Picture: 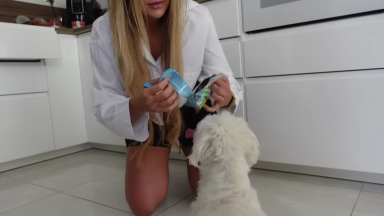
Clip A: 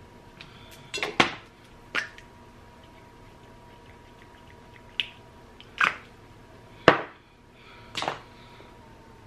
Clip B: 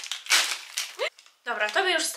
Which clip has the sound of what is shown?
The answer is B